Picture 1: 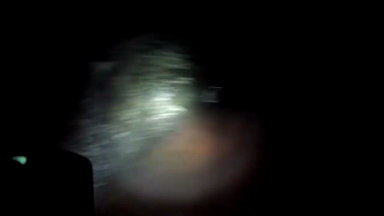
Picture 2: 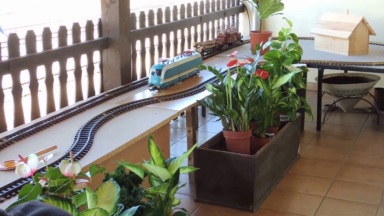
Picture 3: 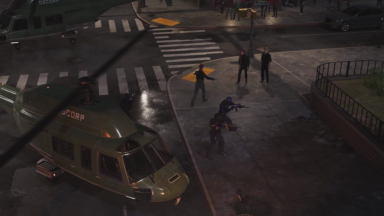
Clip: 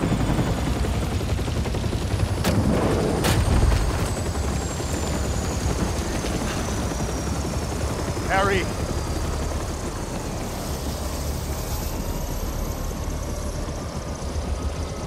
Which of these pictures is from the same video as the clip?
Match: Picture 3